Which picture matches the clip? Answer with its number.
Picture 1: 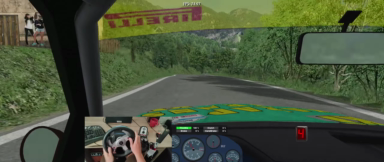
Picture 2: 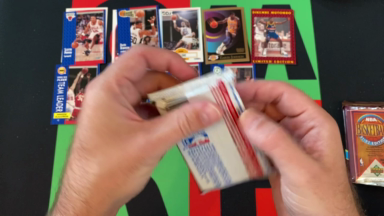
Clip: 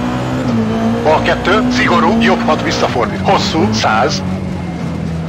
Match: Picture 1